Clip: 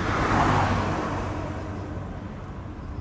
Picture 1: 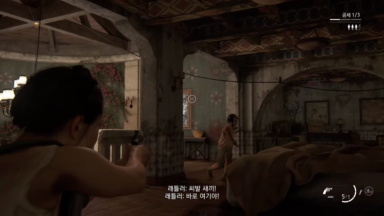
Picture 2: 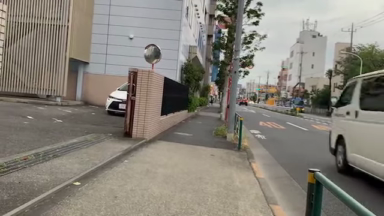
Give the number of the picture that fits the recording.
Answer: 2